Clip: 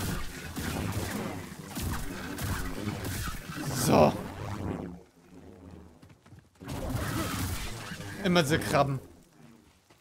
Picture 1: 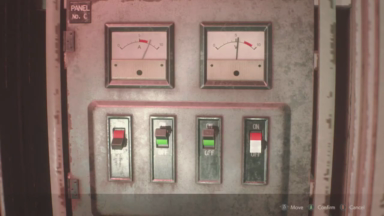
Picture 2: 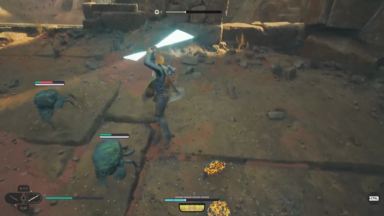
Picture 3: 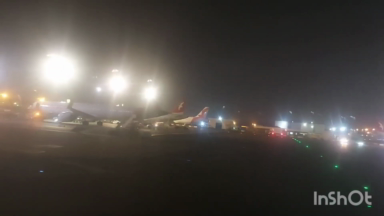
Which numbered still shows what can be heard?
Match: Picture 2